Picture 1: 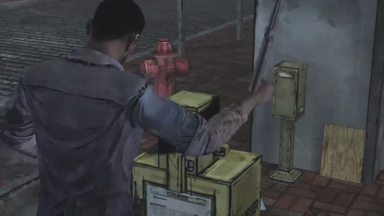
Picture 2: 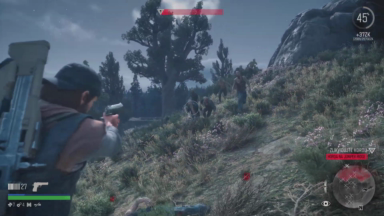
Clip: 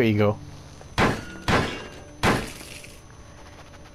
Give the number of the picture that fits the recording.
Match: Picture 1